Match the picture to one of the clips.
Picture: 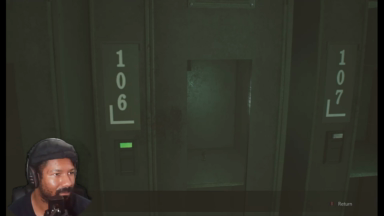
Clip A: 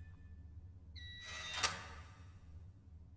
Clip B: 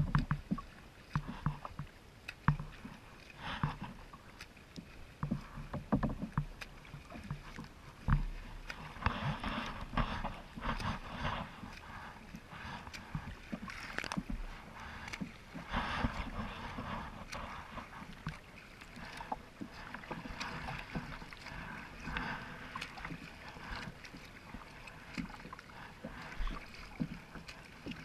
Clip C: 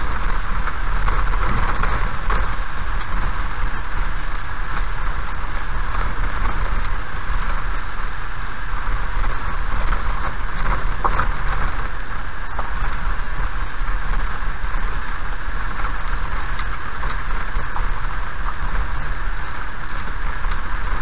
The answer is A